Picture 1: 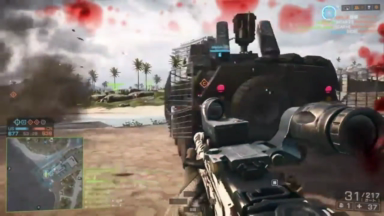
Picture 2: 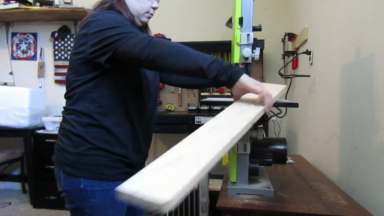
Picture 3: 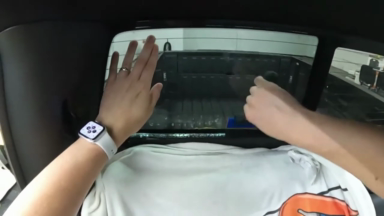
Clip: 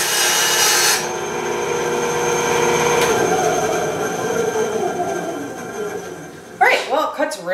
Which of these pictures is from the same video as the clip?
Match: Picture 2